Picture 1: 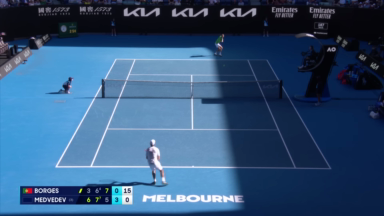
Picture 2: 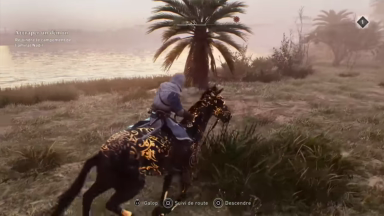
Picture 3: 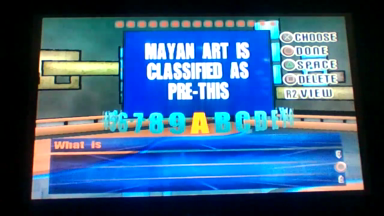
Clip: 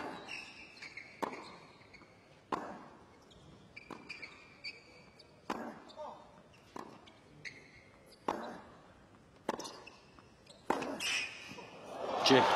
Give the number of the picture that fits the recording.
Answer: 1